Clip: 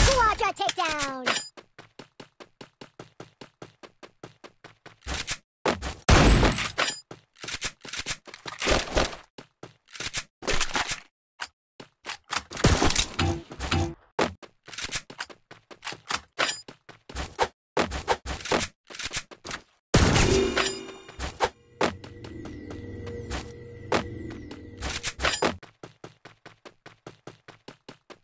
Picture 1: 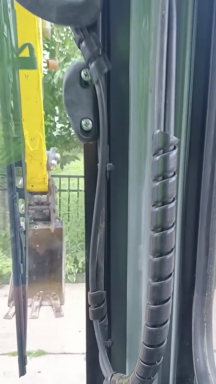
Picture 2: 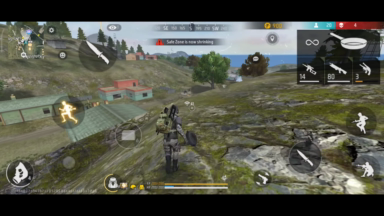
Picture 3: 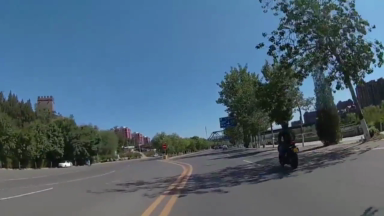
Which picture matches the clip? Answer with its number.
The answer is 2